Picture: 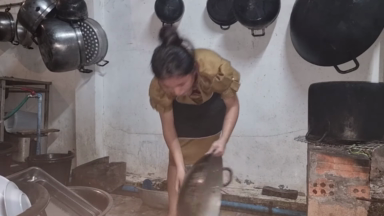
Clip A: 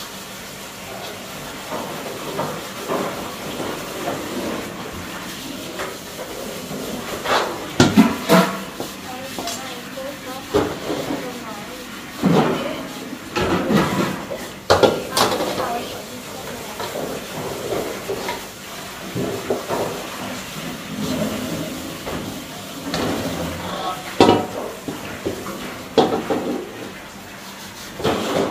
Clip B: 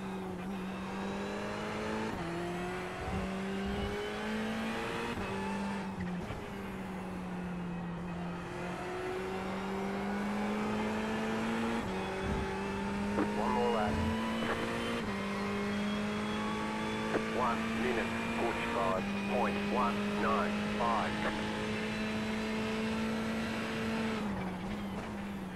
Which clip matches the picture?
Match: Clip A